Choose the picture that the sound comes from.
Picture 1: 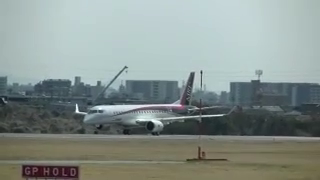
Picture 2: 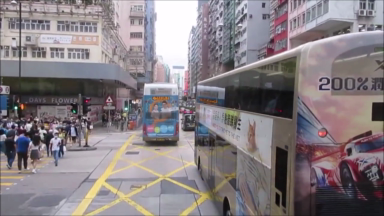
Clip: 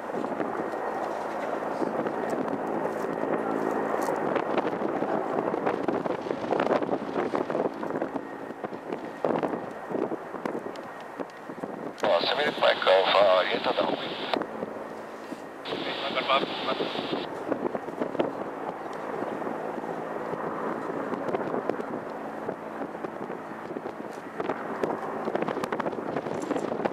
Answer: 1